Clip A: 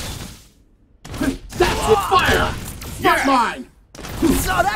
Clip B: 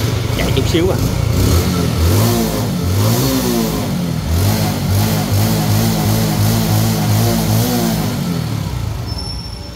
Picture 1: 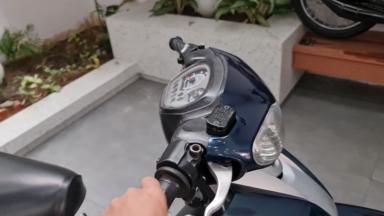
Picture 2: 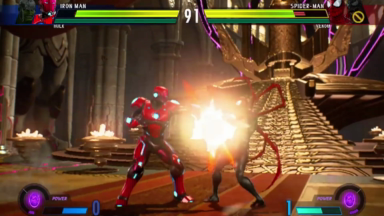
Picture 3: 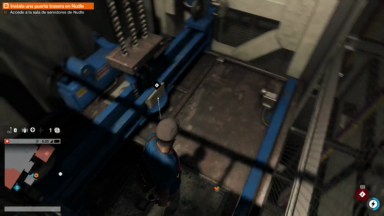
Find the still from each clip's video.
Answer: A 2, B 1